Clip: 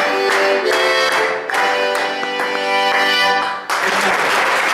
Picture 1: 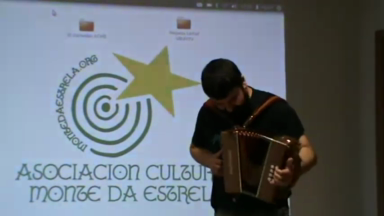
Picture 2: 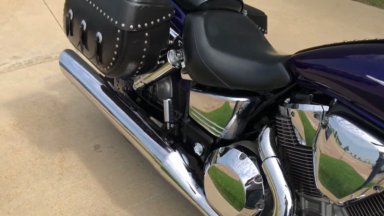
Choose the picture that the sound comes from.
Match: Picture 1